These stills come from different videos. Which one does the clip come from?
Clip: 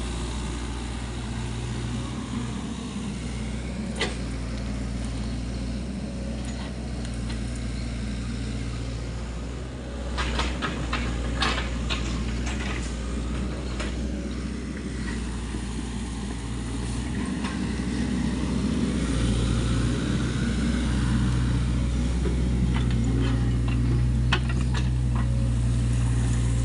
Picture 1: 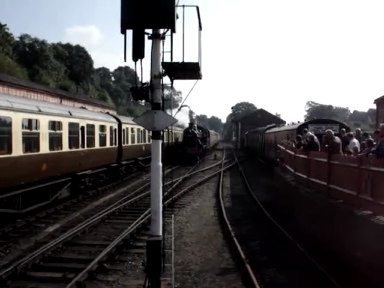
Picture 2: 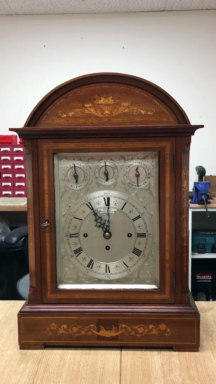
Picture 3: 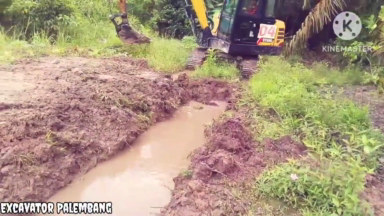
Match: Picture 3